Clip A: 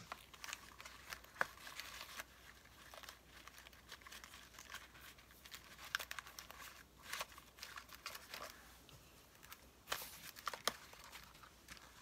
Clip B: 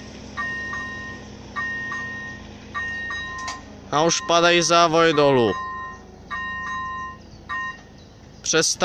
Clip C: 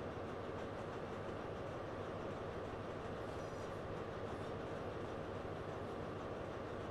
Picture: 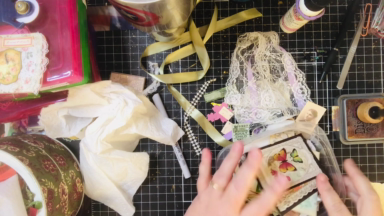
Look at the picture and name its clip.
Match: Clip A